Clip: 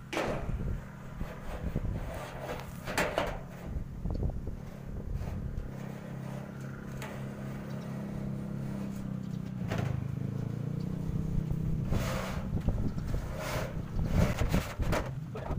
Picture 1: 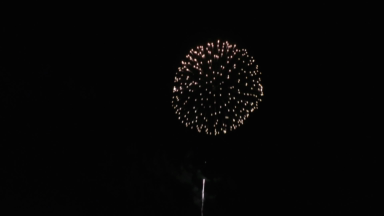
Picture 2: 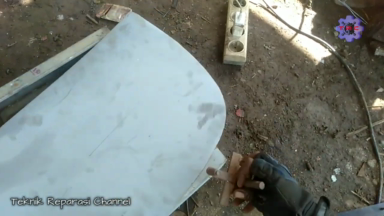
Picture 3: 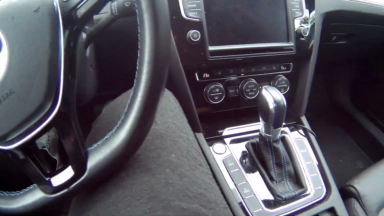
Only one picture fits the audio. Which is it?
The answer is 2